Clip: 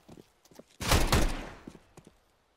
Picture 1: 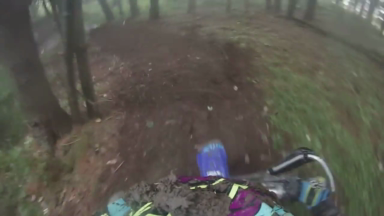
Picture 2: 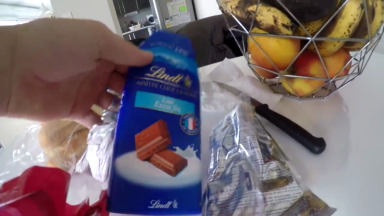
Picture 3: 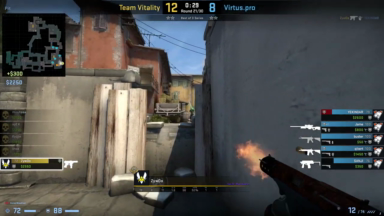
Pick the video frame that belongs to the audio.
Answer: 3